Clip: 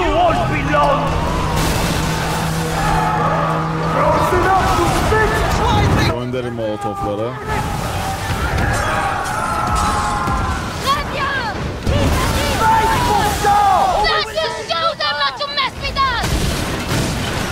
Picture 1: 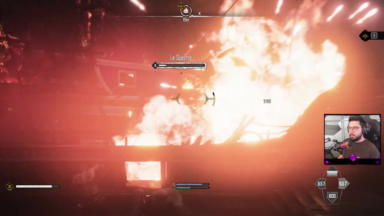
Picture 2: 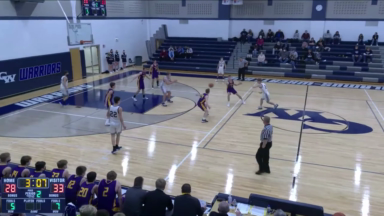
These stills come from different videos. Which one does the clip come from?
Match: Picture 1